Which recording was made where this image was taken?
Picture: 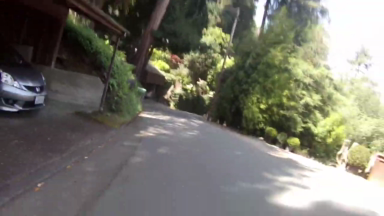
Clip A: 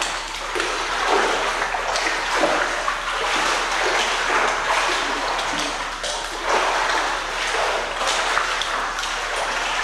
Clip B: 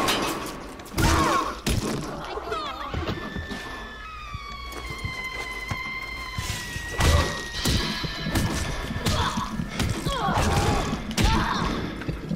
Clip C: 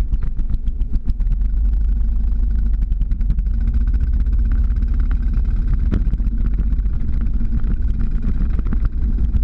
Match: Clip C